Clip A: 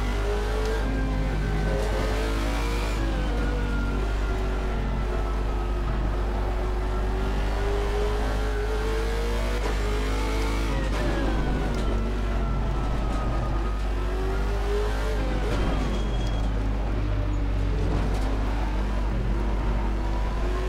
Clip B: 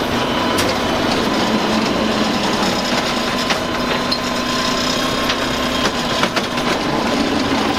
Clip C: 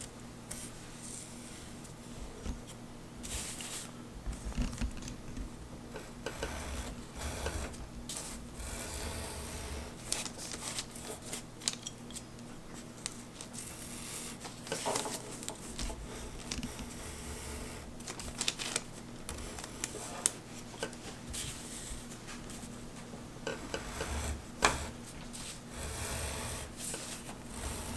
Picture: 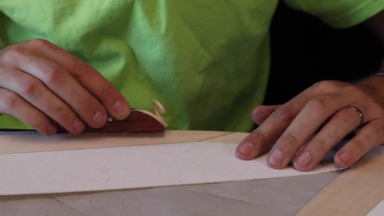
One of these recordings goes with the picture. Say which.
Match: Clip C